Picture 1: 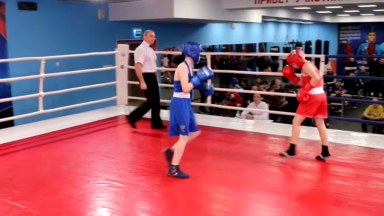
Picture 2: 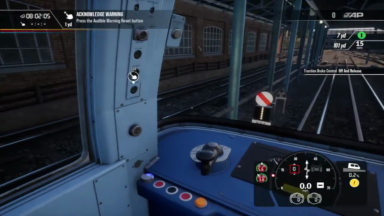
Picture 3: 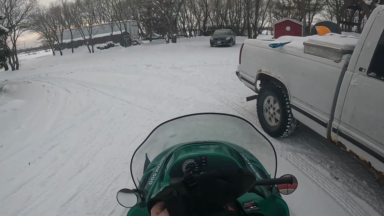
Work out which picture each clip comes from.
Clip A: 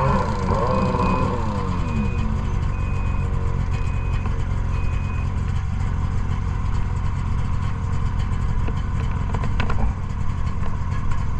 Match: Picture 3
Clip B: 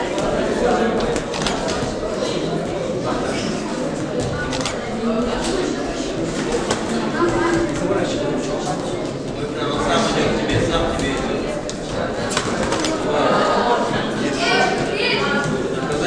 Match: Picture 1